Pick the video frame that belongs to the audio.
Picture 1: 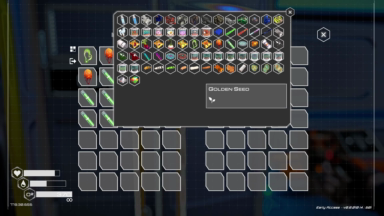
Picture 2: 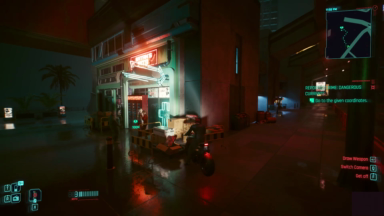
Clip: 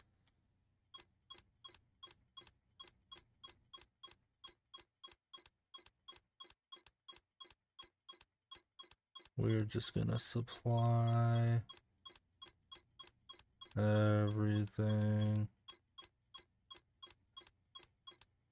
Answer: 1